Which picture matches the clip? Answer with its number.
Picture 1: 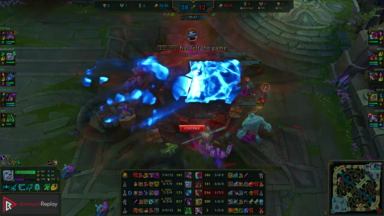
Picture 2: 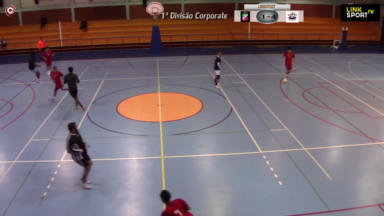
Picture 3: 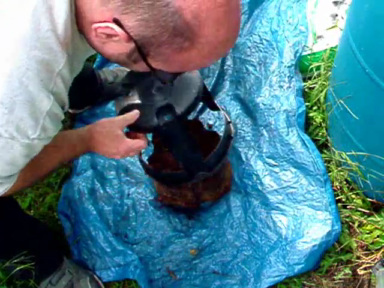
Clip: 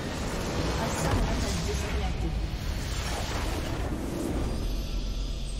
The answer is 1